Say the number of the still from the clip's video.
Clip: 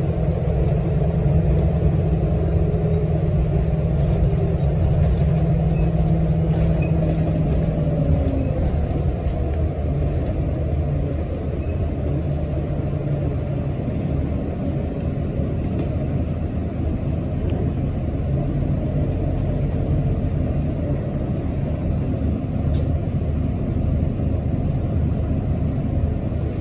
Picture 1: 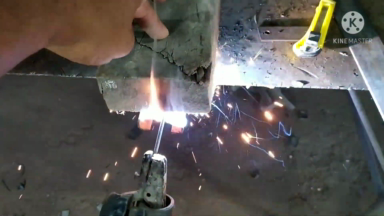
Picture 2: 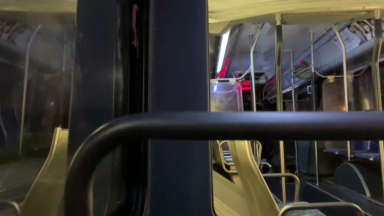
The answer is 2